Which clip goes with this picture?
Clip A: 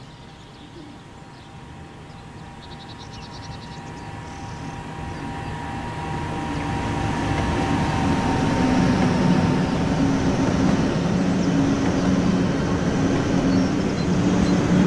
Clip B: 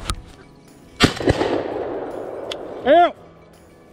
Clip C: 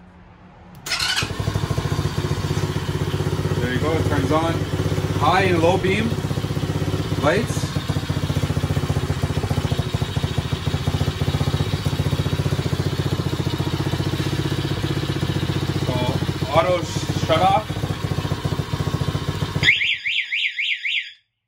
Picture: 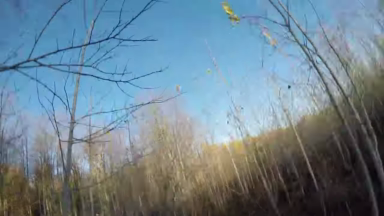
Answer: B